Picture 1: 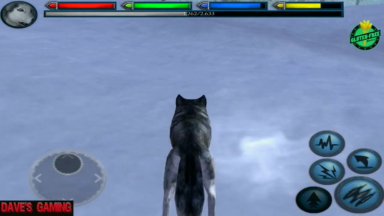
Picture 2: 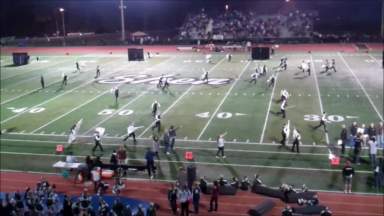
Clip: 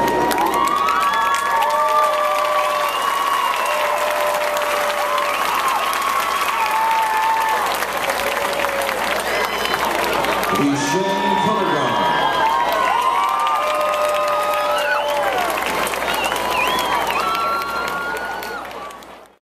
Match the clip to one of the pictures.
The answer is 2